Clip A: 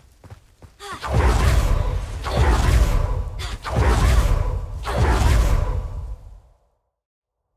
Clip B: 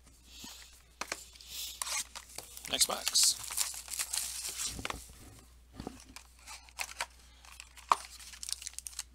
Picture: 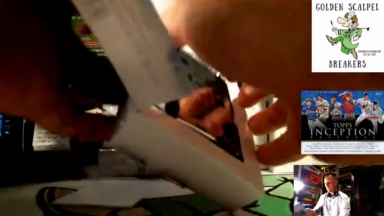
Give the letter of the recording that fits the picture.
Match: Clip B